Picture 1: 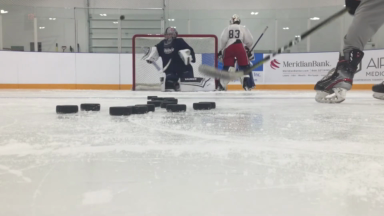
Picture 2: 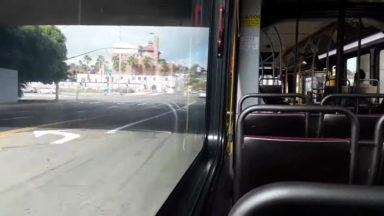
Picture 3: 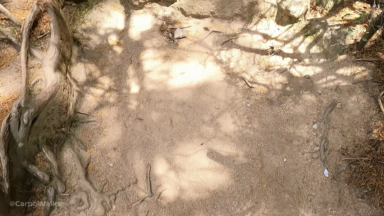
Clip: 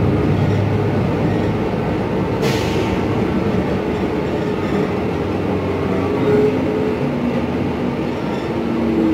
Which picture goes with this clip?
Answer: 2